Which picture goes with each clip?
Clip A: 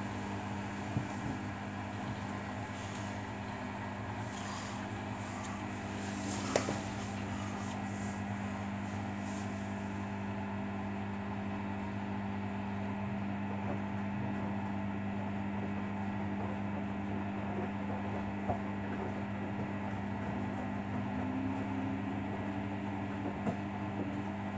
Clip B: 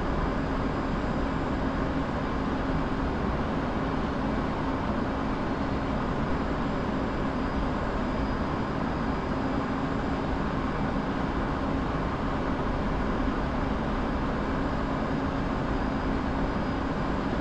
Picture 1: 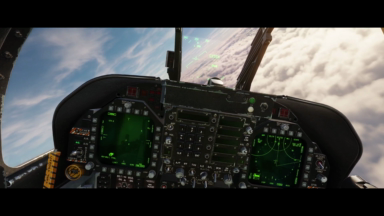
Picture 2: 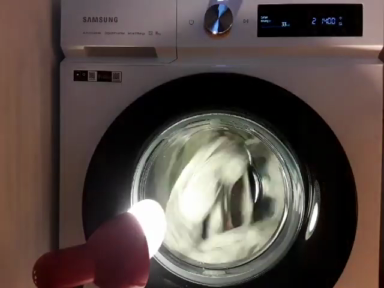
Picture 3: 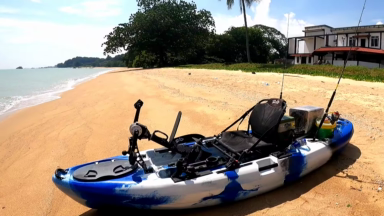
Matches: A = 2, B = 1